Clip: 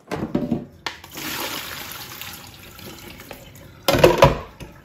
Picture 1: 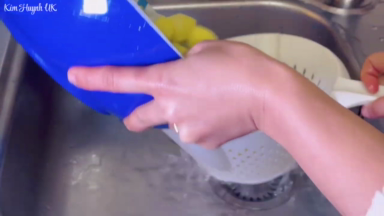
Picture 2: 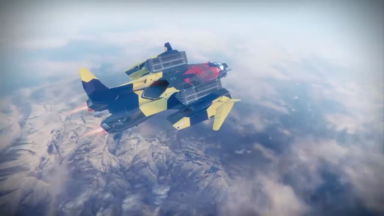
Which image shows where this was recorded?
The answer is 1